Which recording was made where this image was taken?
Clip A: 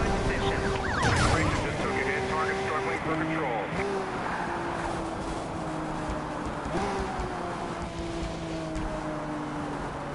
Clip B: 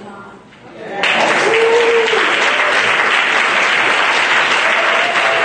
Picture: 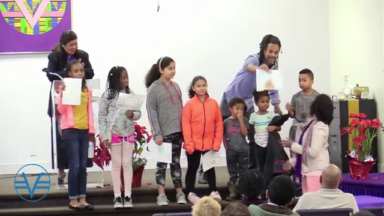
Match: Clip B